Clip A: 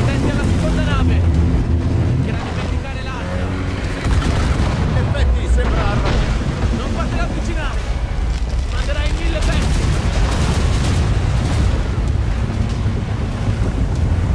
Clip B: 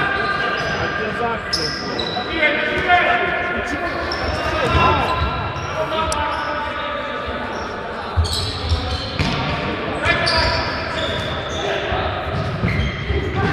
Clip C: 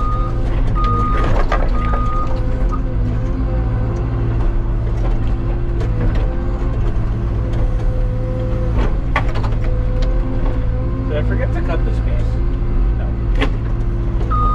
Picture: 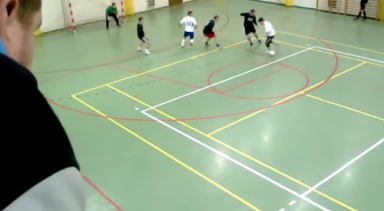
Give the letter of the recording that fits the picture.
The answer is B